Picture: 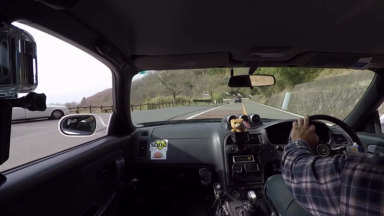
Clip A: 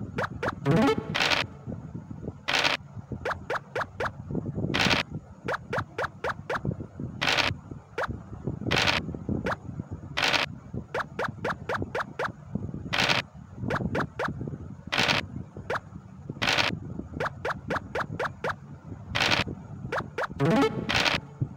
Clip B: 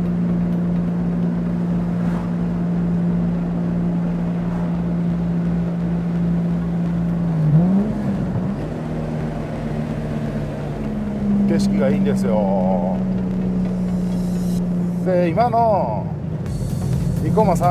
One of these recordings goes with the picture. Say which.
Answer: B